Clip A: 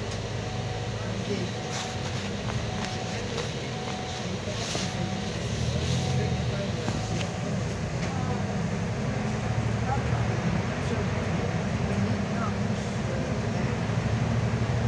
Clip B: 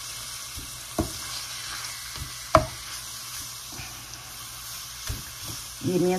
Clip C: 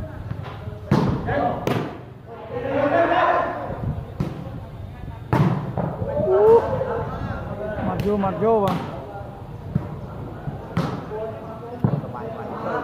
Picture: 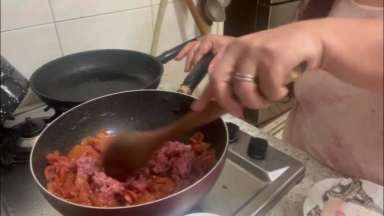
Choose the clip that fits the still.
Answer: B